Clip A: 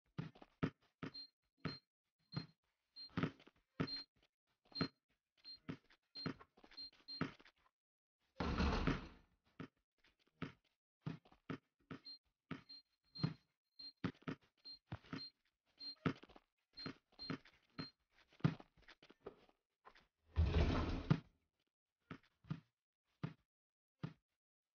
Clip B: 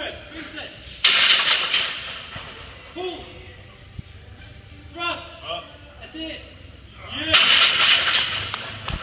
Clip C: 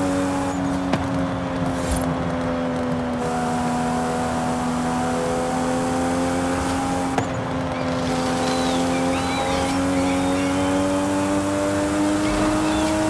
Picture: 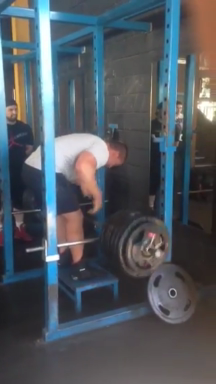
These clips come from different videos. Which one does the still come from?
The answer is B